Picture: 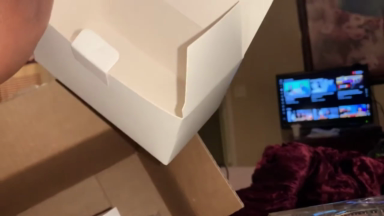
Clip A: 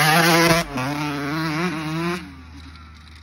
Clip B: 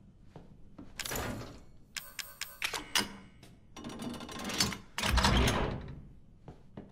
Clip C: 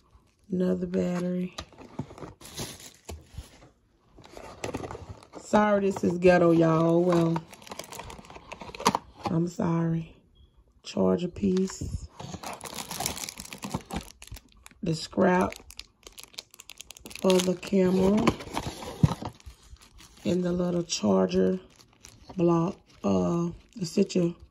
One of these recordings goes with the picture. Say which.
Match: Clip C